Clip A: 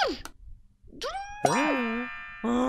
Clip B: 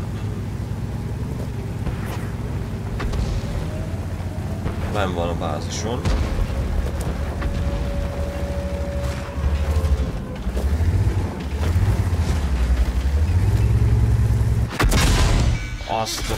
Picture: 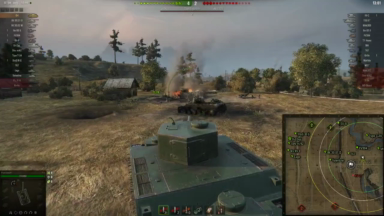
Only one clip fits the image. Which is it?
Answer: B